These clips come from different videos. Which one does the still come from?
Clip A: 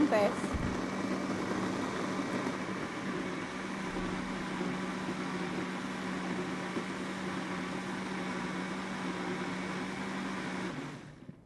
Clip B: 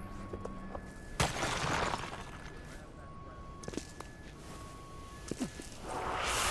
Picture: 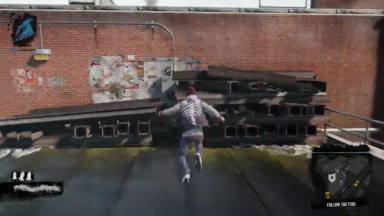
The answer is B